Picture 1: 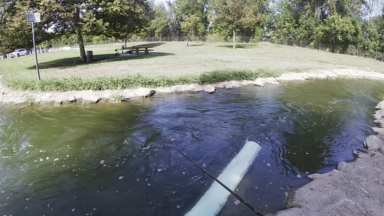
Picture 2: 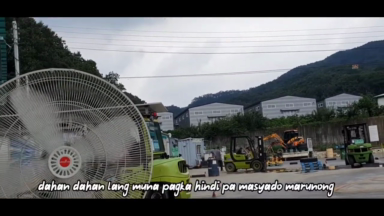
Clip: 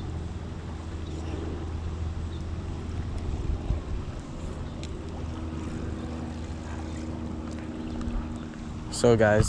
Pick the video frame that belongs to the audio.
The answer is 1